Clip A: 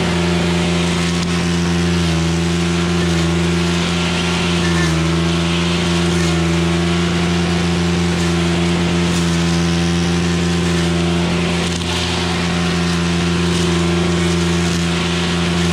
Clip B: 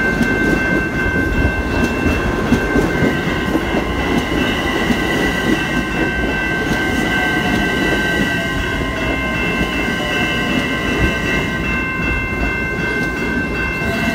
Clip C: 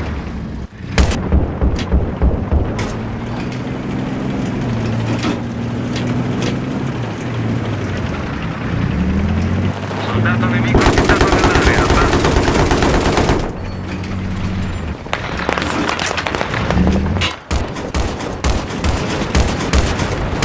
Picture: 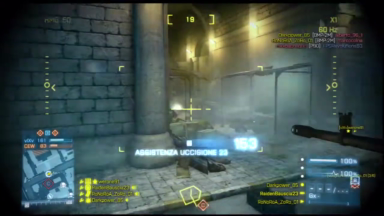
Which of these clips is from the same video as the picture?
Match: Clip C